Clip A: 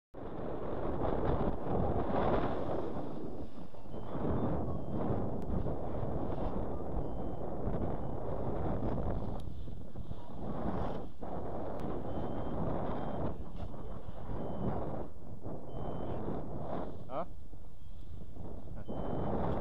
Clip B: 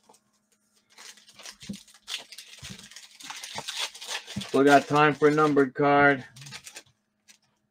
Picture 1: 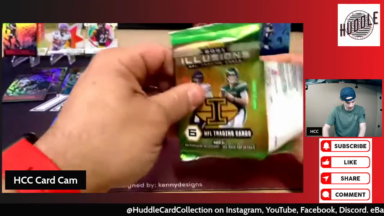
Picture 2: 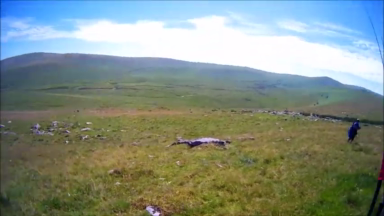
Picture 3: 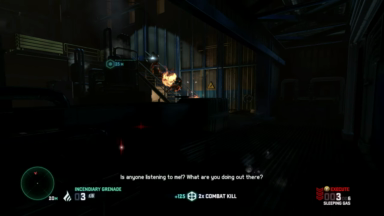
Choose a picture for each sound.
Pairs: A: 2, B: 1